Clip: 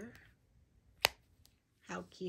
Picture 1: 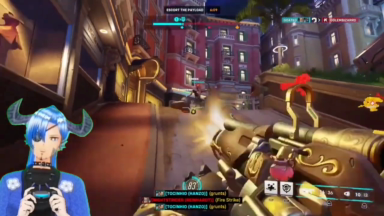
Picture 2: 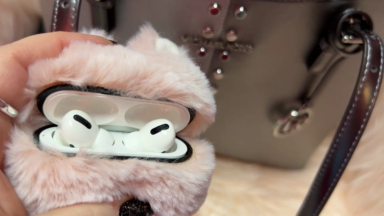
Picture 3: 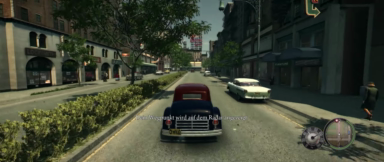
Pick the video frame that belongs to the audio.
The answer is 2